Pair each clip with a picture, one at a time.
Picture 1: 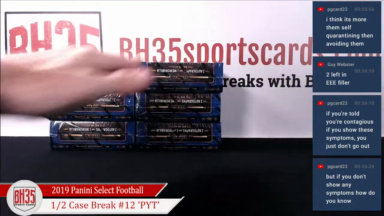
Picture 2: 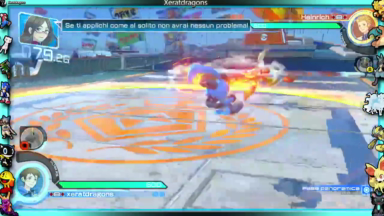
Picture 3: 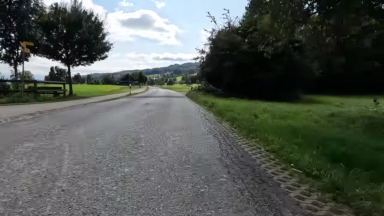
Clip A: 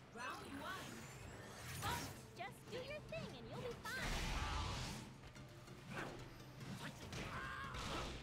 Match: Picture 2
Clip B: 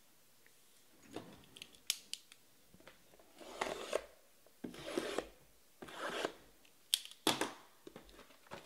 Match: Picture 1